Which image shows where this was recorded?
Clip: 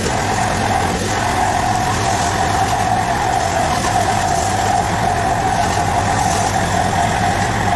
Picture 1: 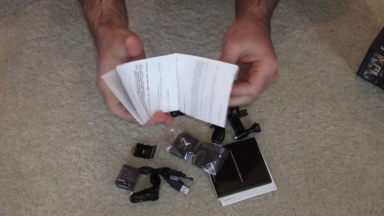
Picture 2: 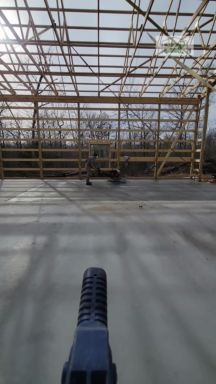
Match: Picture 2